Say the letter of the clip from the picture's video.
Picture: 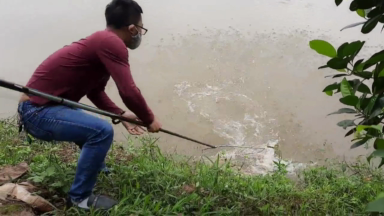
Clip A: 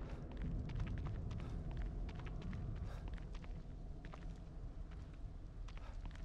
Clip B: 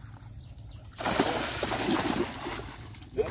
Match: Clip B